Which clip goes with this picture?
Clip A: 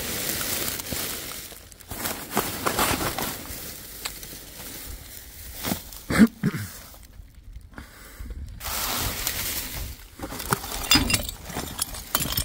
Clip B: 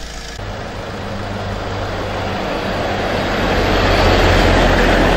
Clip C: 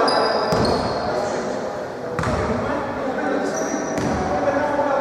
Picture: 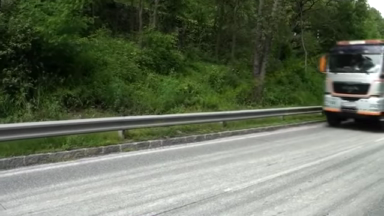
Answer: B